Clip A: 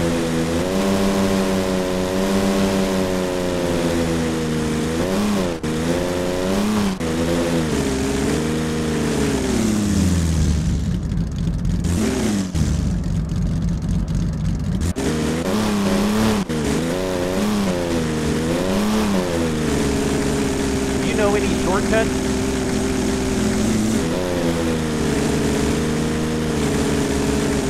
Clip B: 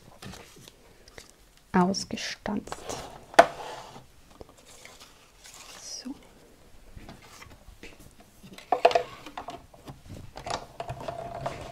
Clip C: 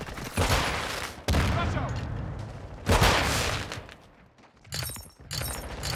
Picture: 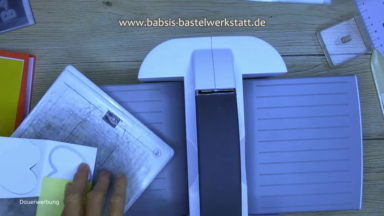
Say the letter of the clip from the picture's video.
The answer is B